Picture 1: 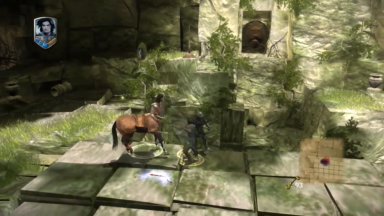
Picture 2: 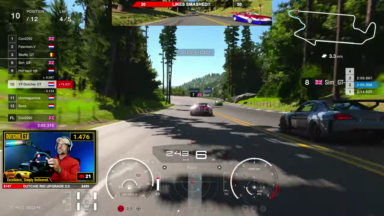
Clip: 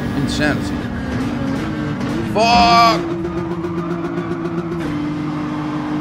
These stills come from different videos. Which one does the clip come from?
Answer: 2